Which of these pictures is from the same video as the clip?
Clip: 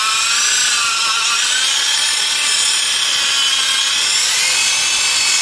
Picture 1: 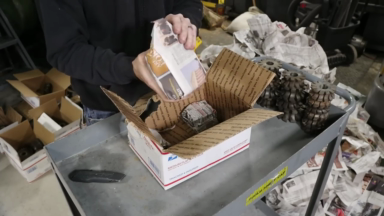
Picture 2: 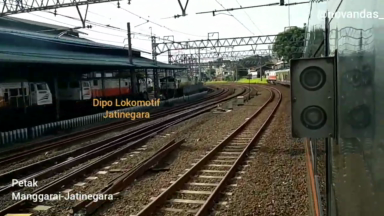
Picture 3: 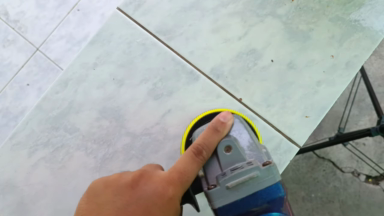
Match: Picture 3